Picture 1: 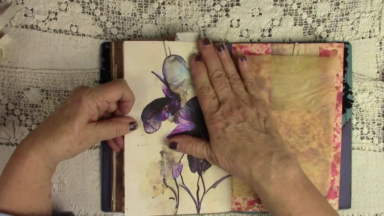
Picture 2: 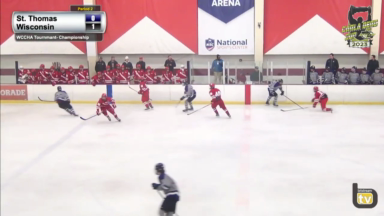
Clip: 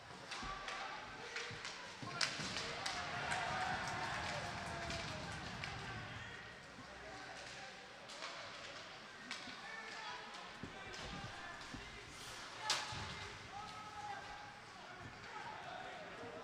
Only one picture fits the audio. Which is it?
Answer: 2